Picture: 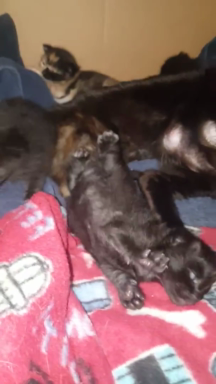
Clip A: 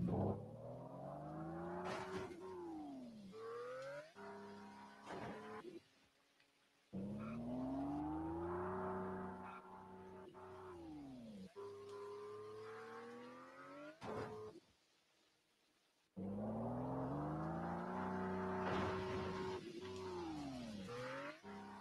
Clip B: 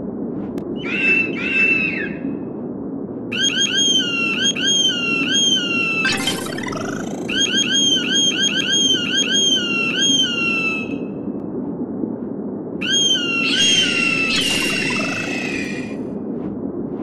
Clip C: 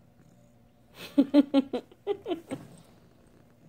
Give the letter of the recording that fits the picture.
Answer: C